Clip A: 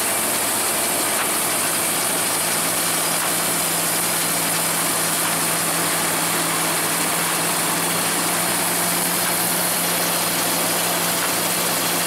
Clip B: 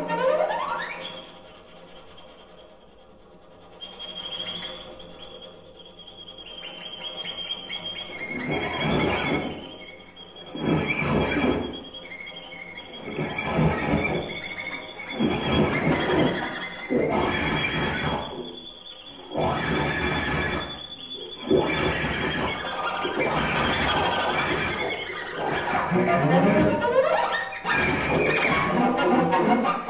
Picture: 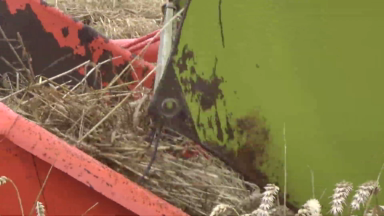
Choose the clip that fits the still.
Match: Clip A